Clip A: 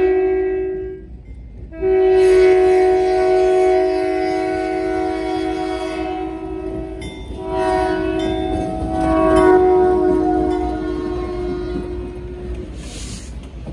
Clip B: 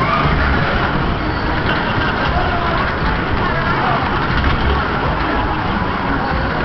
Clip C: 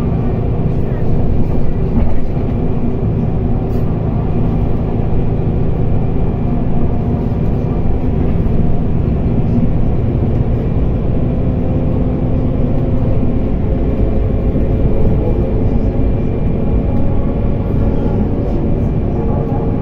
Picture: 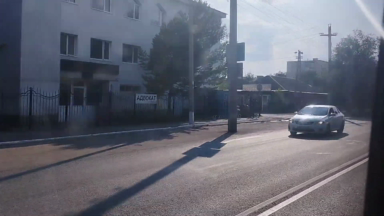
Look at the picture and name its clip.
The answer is C